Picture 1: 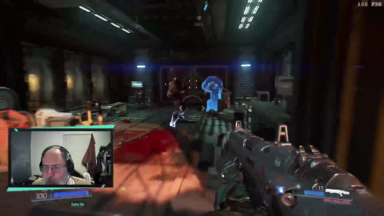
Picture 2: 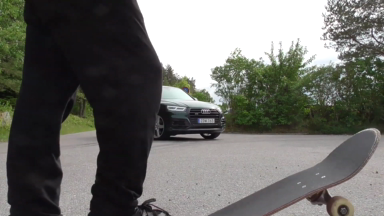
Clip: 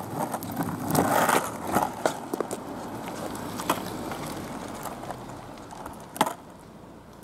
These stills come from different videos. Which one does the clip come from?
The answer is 2